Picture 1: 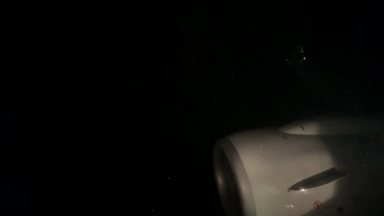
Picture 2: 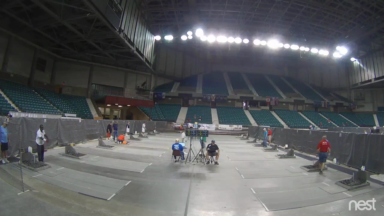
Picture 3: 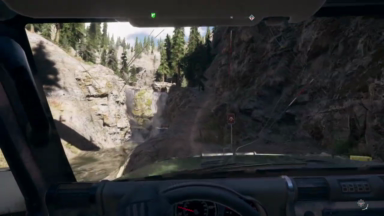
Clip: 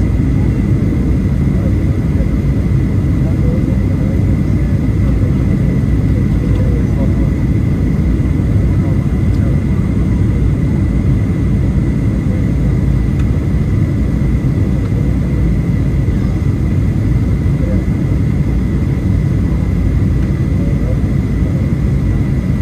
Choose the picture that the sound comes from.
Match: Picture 1